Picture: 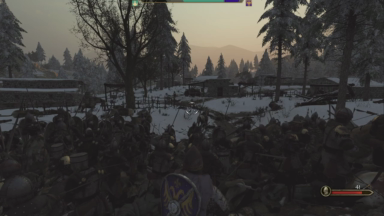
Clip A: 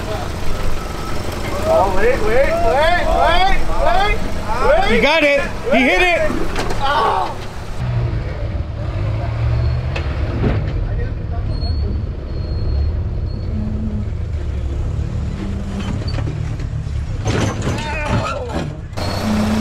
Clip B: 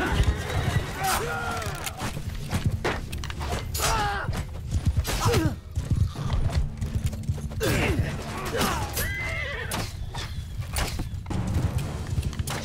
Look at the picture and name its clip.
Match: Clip B